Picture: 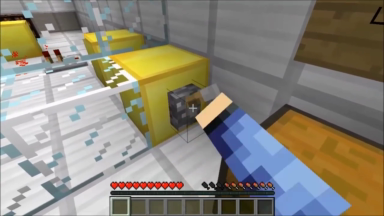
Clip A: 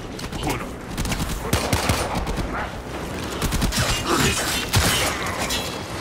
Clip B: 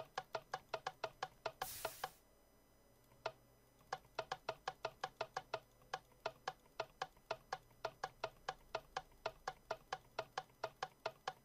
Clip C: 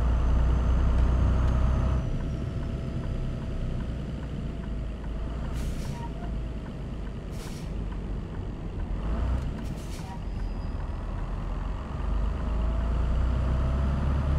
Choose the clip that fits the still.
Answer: B